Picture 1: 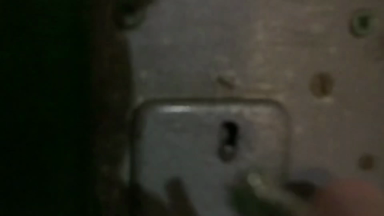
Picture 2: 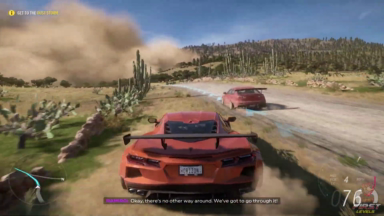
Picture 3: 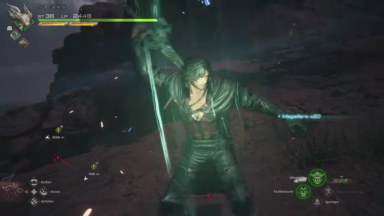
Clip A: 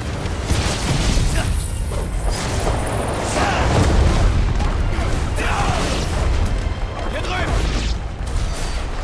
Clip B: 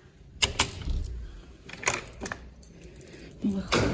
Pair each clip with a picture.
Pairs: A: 3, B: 1